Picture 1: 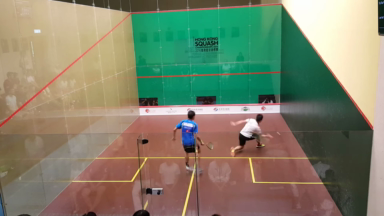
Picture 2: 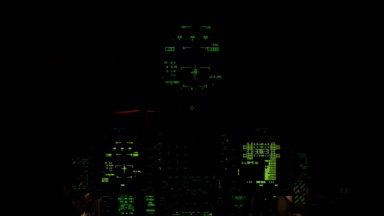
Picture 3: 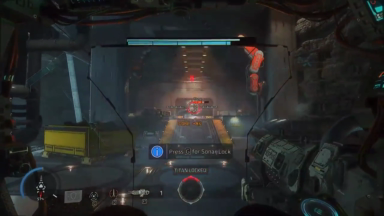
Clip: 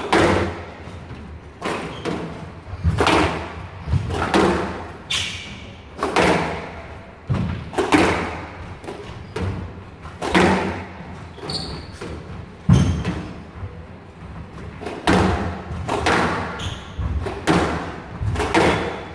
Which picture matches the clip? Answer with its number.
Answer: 1